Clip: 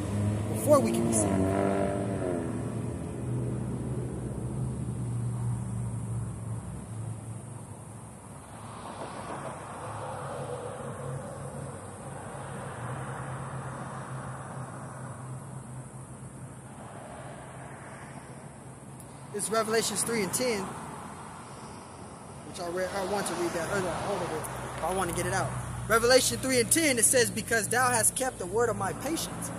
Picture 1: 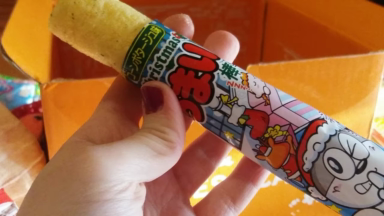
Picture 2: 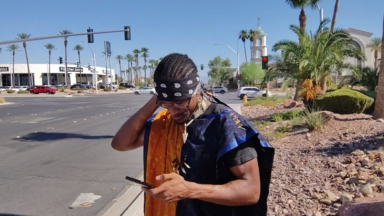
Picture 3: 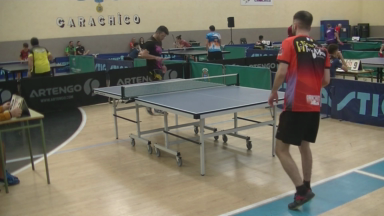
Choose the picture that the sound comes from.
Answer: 2